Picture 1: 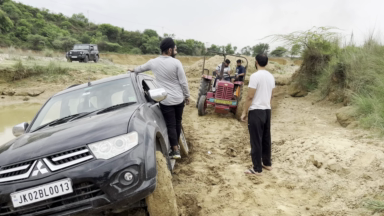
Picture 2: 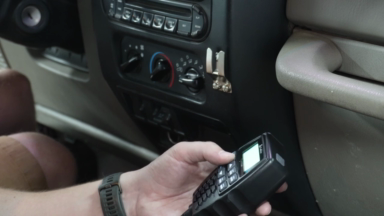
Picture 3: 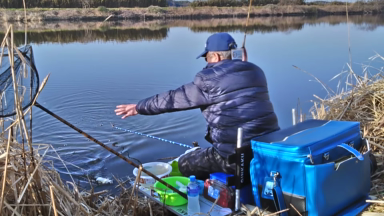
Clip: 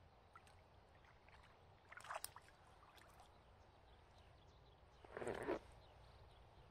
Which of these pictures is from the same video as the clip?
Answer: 3